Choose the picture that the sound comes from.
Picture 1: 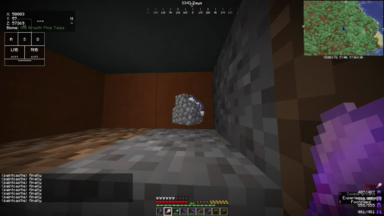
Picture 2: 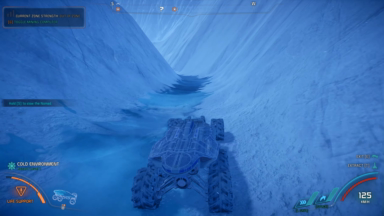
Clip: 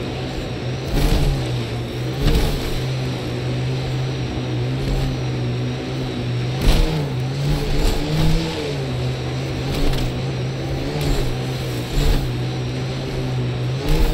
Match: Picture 2